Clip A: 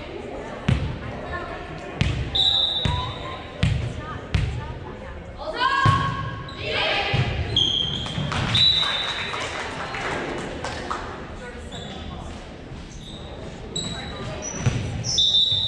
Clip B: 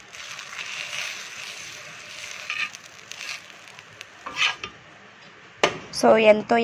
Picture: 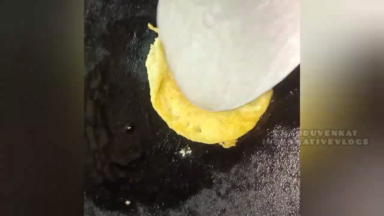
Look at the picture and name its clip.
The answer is B